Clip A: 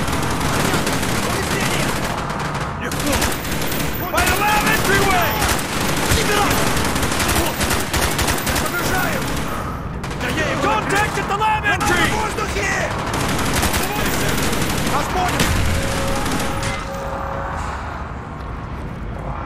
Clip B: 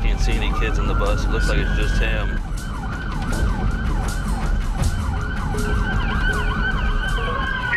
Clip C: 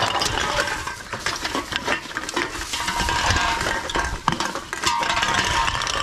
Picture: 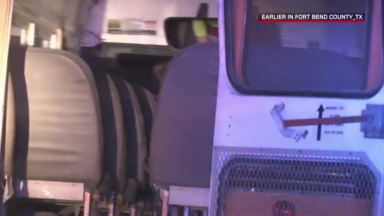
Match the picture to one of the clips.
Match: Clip B